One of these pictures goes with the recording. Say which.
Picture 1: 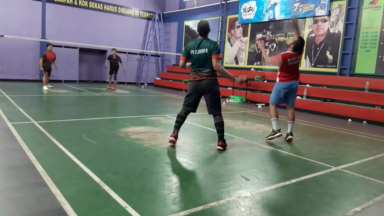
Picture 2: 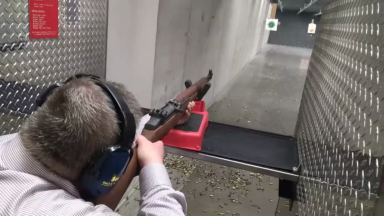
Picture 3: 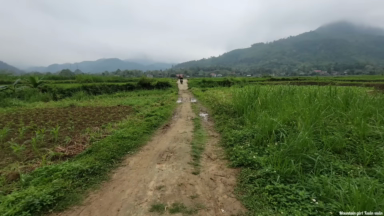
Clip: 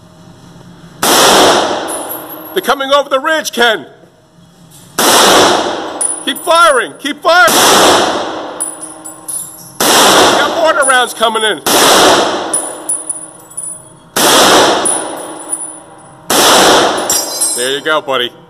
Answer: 2